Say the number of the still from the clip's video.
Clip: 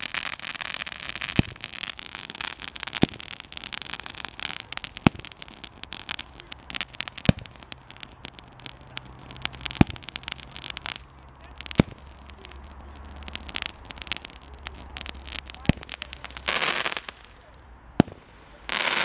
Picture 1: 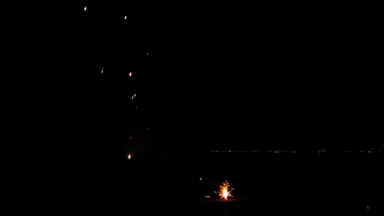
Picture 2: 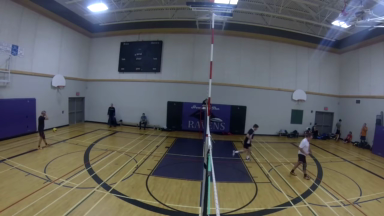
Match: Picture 1